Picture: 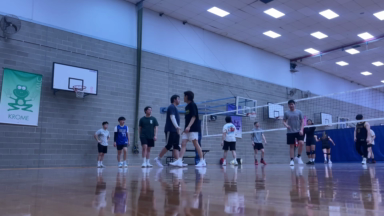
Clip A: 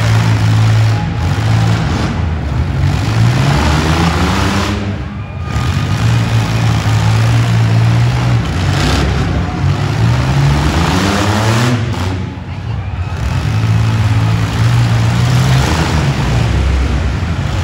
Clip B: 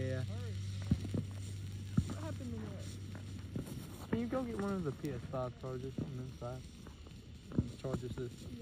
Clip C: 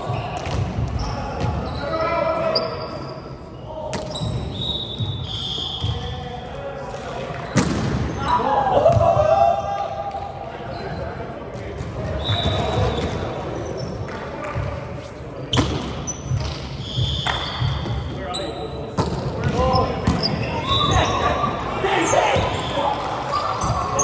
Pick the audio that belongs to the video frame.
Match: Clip C